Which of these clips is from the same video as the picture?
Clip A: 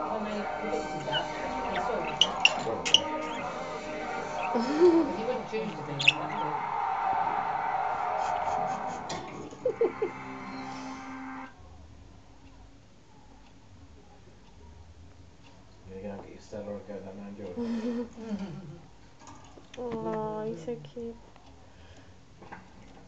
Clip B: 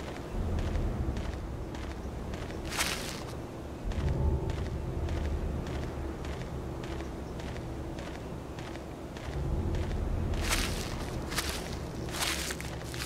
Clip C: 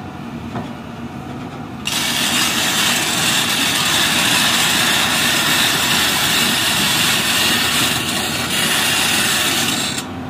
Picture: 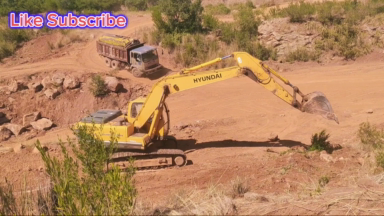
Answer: C